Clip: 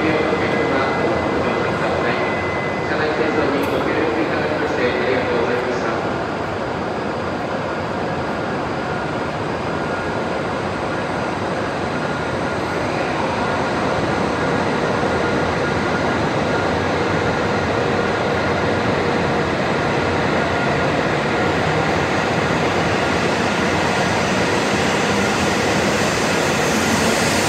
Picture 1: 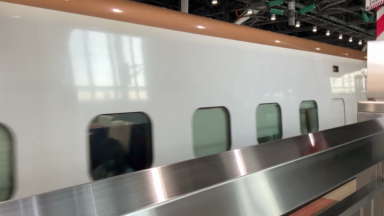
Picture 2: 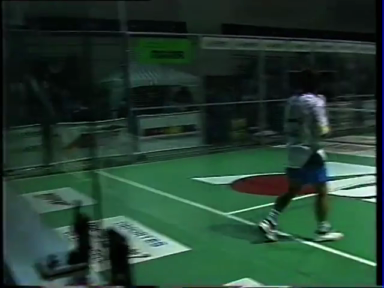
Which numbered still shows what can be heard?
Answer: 1